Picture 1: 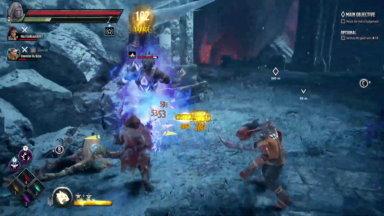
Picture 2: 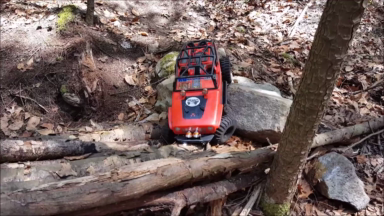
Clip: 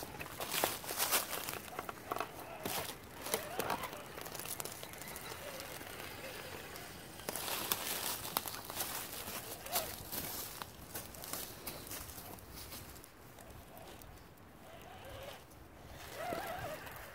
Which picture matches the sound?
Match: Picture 2